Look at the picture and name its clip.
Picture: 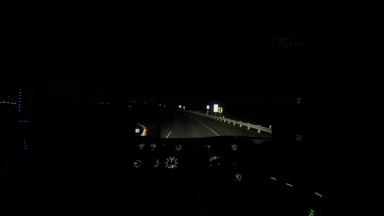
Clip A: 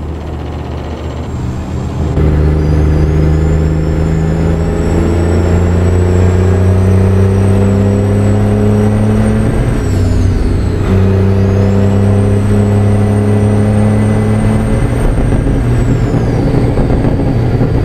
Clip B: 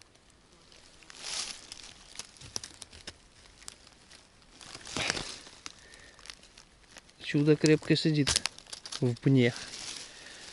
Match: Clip A